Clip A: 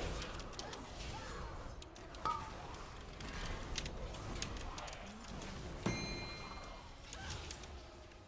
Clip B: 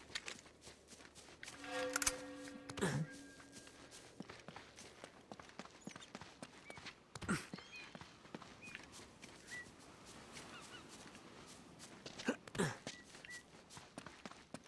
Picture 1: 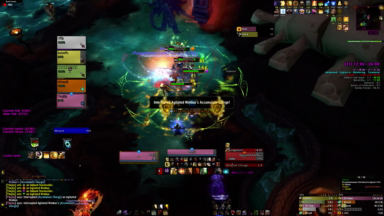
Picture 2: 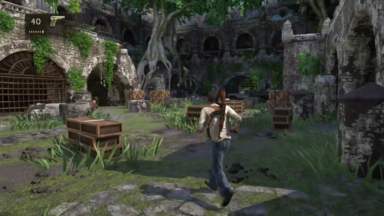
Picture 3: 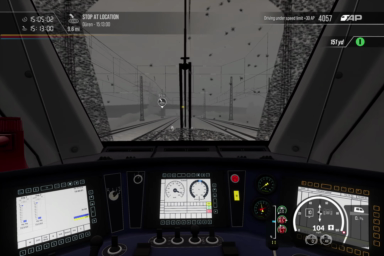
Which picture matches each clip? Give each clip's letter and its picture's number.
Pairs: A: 1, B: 2